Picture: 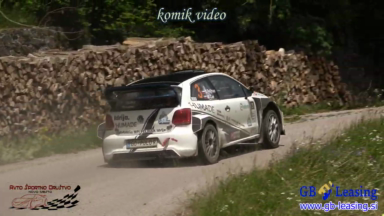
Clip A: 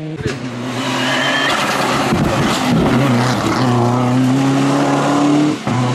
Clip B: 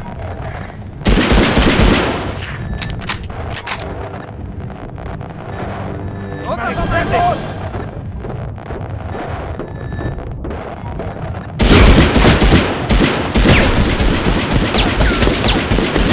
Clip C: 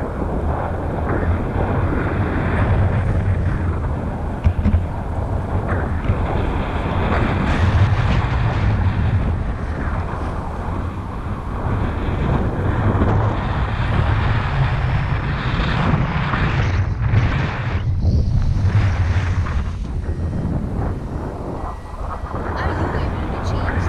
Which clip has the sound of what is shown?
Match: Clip A